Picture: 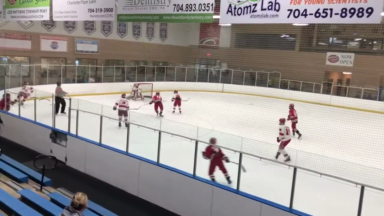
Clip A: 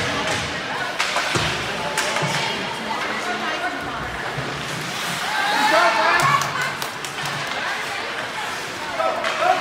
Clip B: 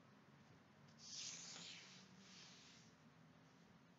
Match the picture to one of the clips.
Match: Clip A